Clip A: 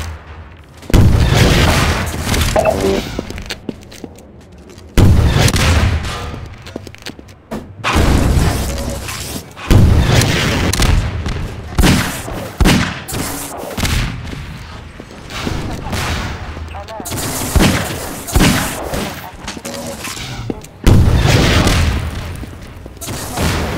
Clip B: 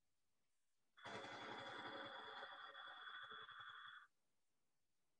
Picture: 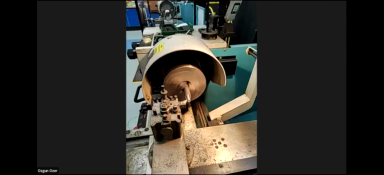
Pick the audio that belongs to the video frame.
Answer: B